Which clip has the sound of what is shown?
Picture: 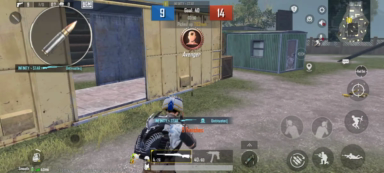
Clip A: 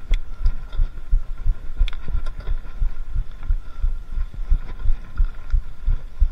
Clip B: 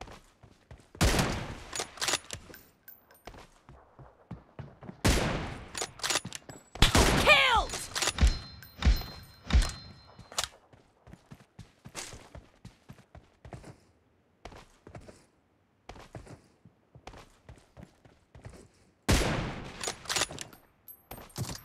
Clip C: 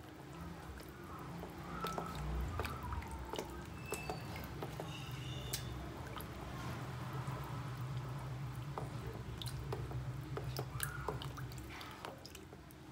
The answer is B